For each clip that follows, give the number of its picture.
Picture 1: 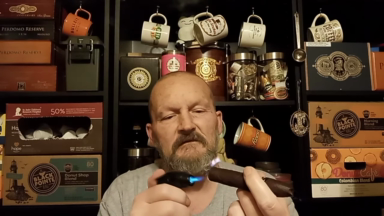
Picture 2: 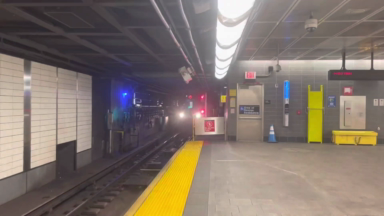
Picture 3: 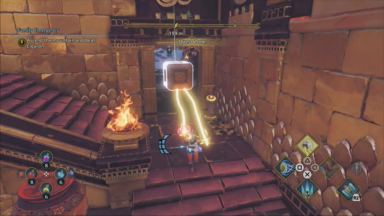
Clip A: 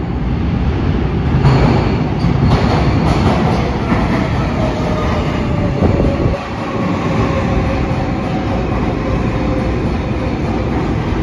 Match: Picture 2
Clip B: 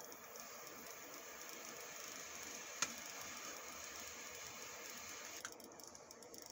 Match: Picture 1